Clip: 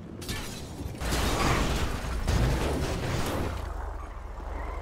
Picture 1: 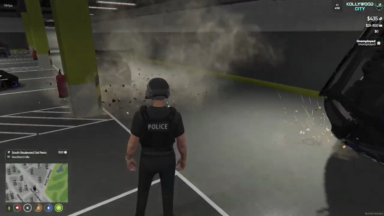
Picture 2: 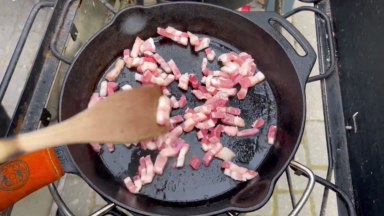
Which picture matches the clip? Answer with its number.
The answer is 1